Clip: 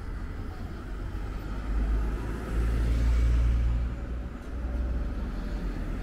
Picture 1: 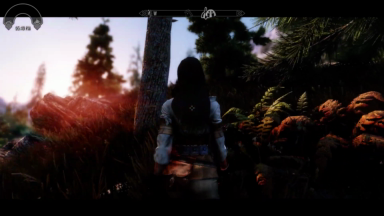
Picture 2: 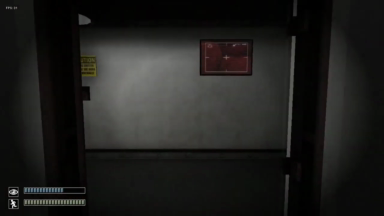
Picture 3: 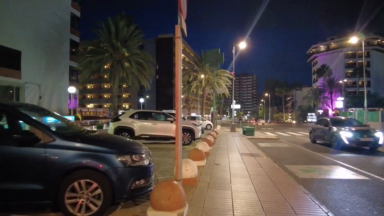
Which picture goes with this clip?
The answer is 3